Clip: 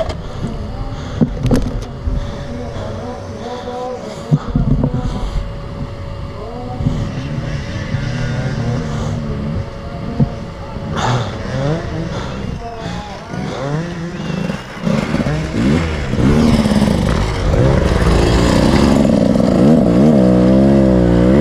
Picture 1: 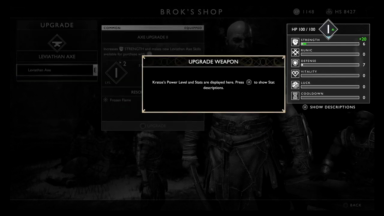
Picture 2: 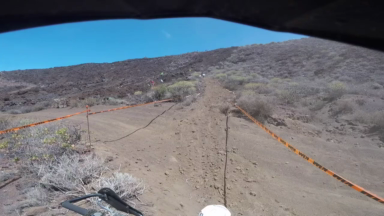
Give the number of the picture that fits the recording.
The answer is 2